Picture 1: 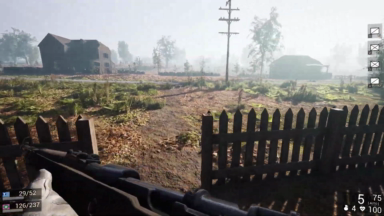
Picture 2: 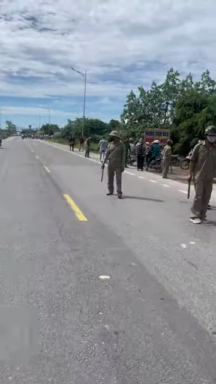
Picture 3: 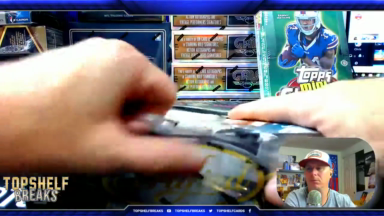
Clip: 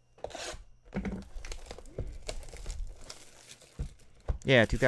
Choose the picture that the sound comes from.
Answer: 3